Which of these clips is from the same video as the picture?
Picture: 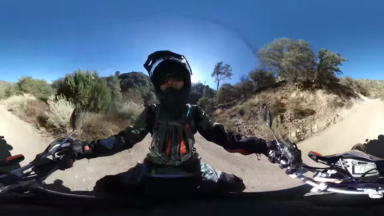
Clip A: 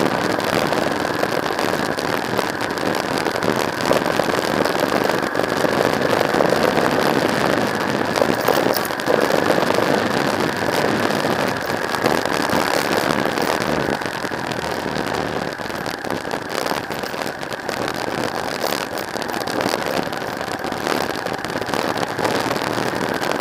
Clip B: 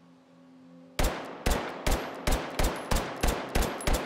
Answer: A